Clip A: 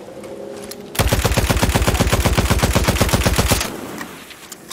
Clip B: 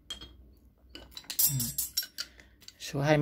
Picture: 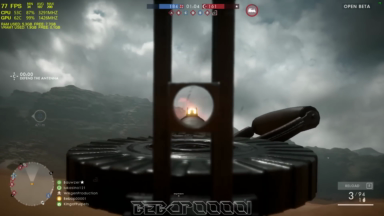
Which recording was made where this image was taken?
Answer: A